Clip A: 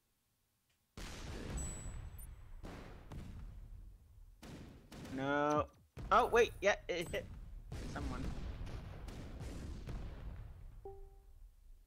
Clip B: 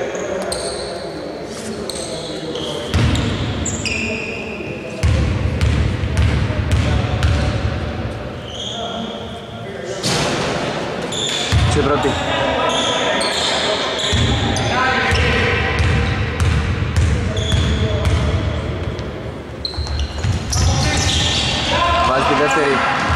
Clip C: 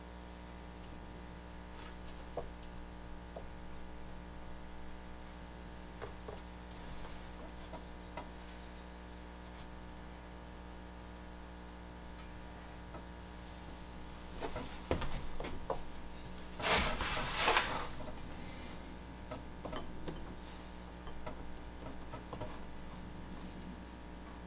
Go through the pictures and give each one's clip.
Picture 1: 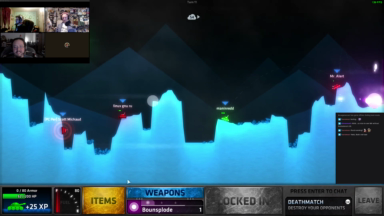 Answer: A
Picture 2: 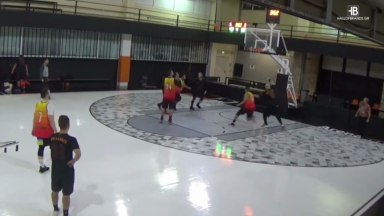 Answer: B